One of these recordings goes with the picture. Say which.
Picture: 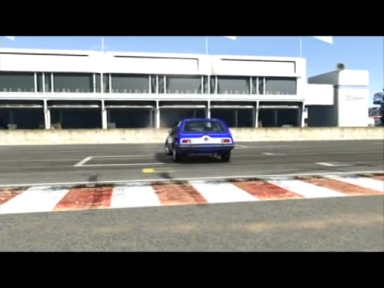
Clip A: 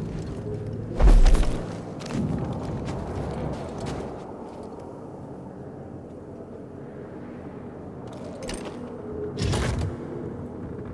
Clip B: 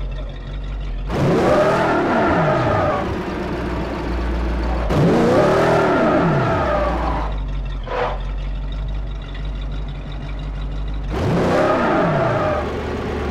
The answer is B